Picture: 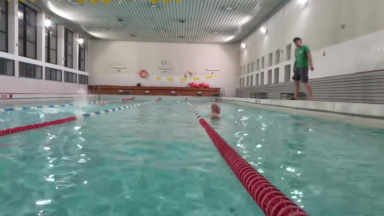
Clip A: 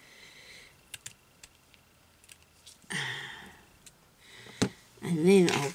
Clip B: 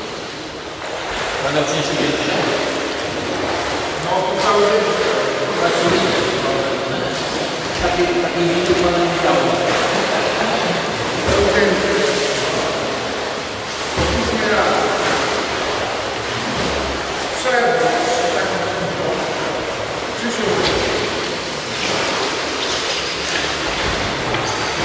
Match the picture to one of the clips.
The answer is B